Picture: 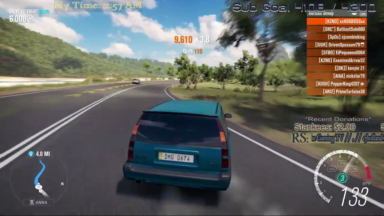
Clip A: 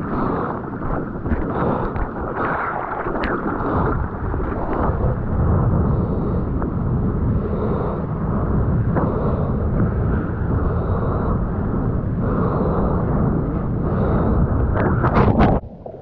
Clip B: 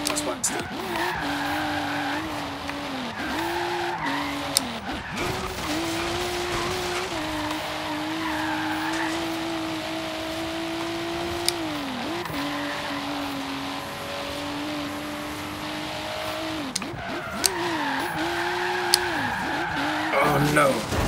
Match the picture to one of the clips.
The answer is B